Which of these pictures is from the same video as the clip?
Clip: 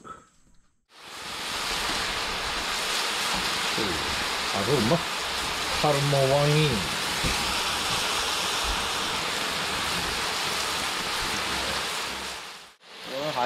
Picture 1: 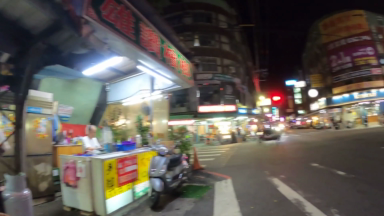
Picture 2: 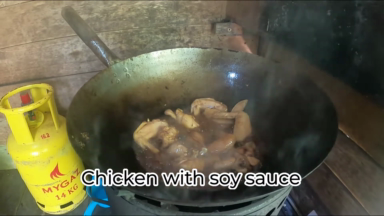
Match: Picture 2